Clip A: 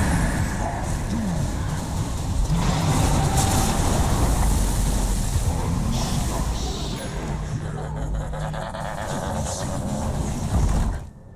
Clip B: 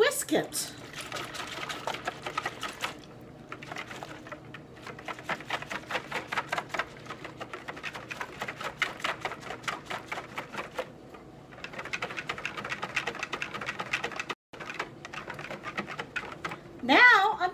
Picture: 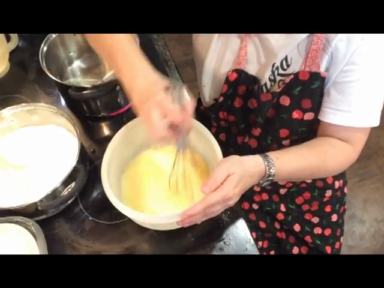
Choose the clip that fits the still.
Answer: B